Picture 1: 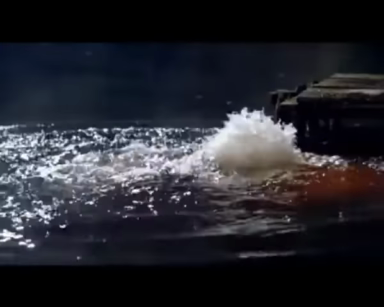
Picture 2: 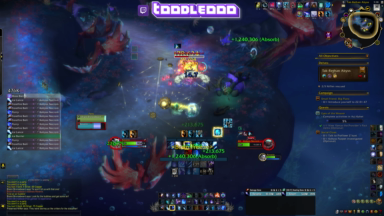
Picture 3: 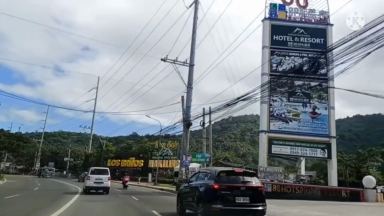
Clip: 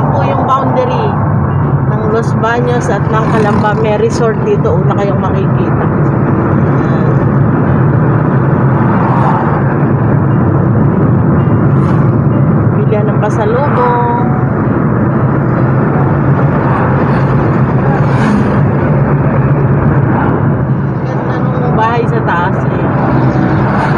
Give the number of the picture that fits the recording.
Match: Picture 3